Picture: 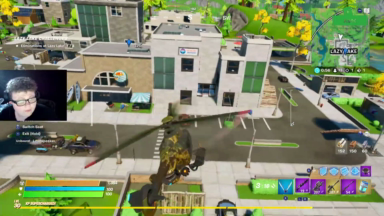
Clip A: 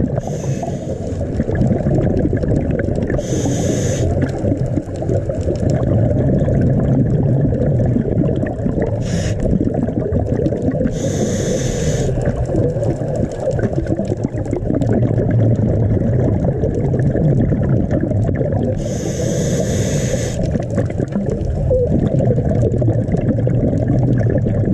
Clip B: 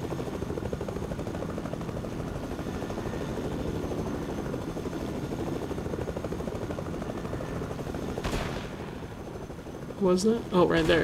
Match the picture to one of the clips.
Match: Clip B